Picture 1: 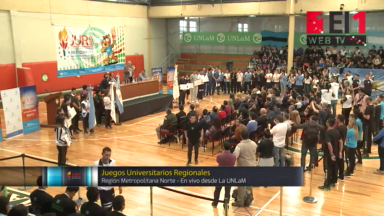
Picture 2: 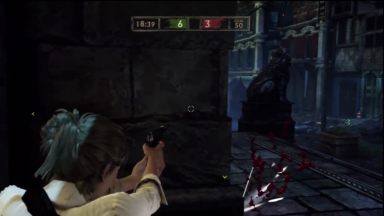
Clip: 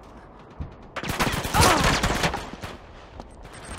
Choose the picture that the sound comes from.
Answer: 2